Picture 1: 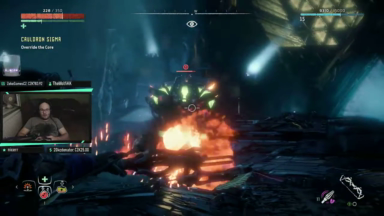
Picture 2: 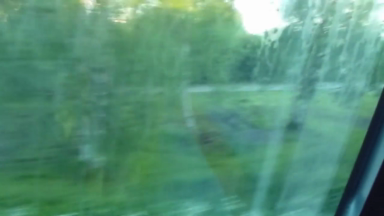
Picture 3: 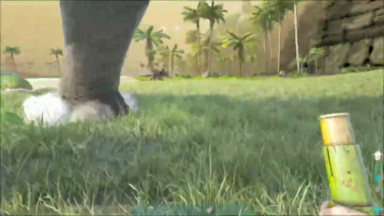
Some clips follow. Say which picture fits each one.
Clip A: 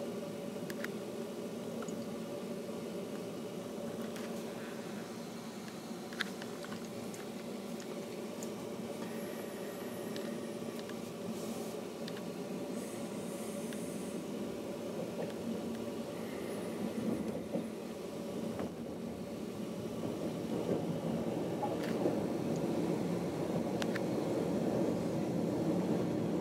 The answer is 2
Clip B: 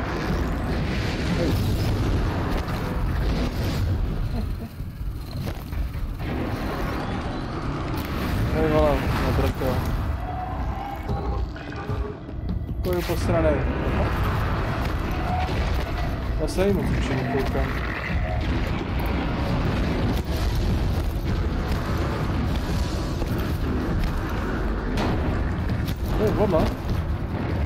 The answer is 1